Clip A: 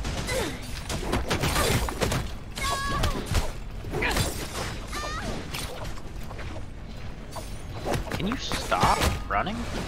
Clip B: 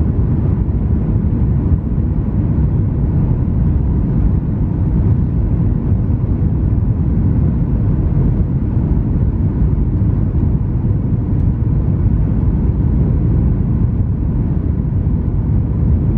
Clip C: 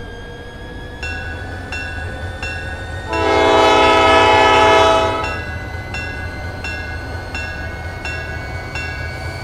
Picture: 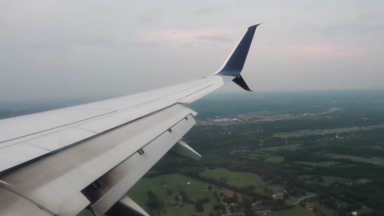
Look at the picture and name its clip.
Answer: B